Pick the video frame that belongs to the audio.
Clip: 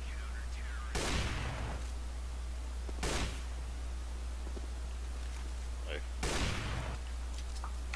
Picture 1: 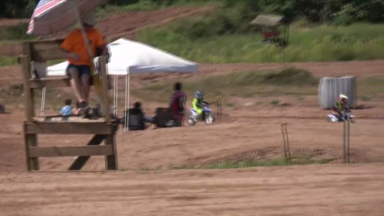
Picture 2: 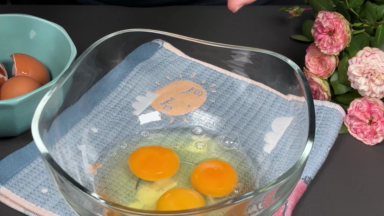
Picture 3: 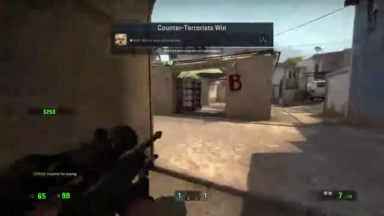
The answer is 3